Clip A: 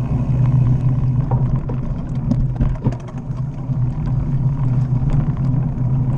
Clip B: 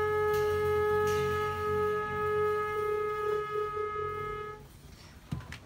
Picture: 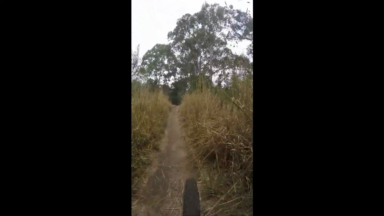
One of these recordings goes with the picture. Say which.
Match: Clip A